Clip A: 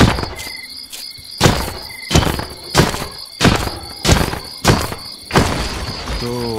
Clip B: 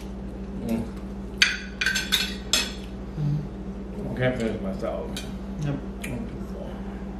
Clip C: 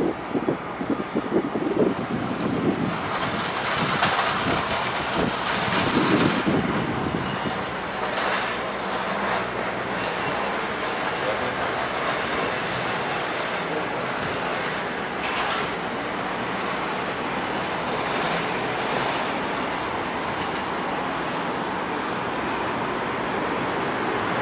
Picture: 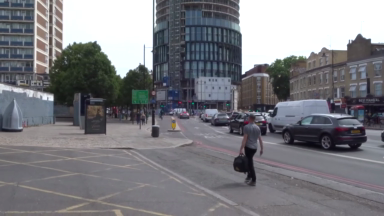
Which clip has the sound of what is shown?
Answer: C